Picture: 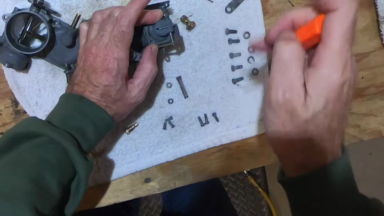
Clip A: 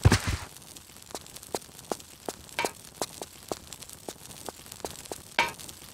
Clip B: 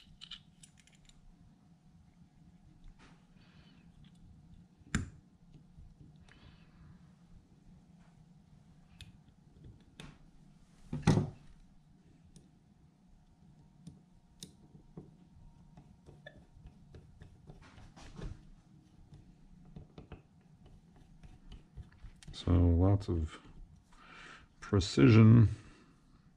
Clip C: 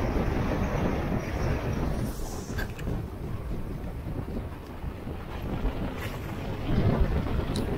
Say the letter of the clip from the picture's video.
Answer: B